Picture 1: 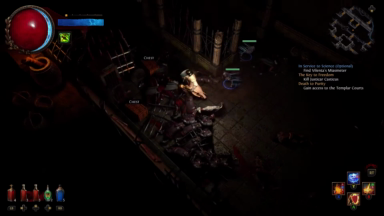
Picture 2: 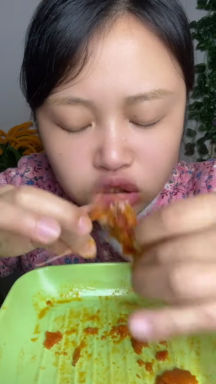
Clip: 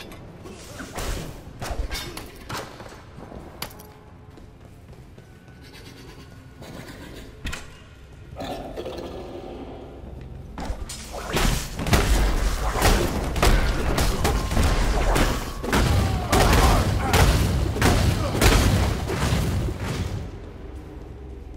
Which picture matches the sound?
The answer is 1